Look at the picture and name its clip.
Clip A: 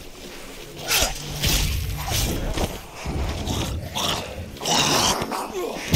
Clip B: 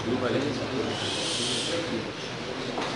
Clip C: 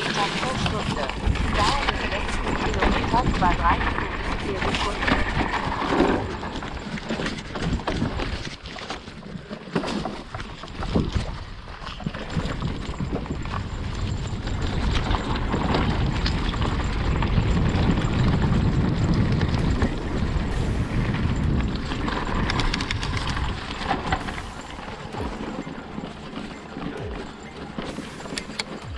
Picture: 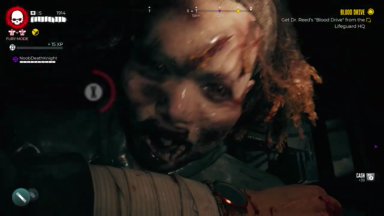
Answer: A